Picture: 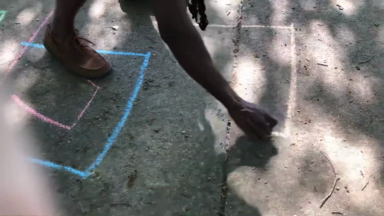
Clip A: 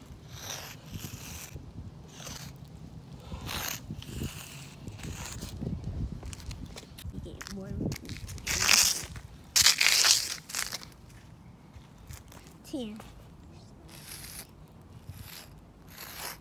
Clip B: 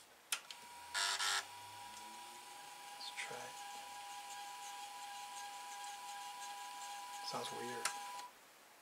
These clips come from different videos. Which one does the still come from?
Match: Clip A